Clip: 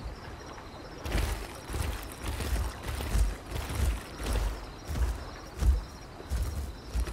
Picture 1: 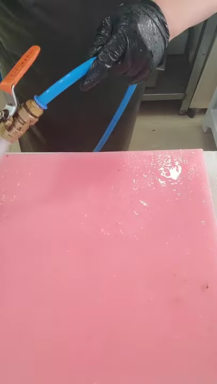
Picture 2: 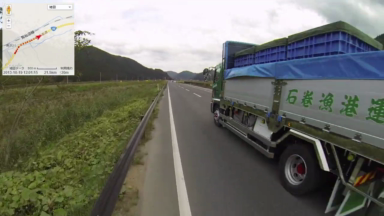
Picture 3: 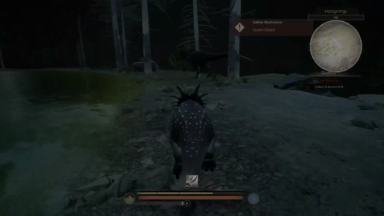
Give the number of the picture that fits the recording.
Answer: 3